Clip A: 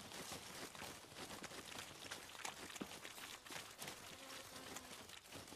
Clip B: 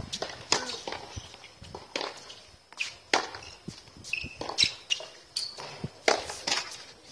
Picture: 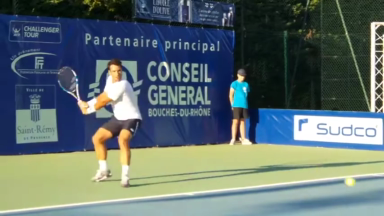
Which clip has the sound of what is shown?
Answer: B